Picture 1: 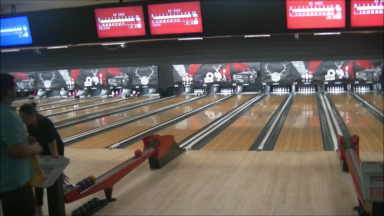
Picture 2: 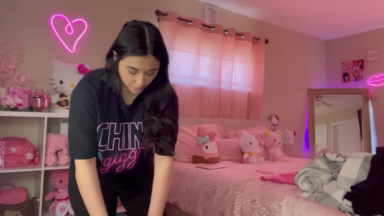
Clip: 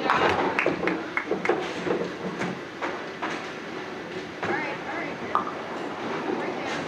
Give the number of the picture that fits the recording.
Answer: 1